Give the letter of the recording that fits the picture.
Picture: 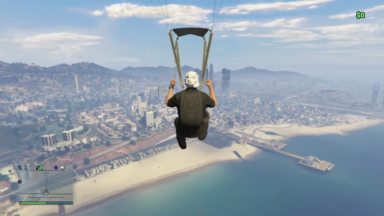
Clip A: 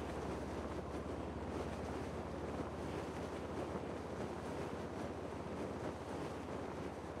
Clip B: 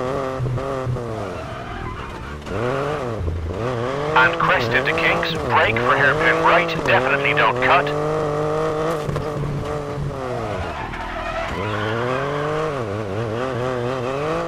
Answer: A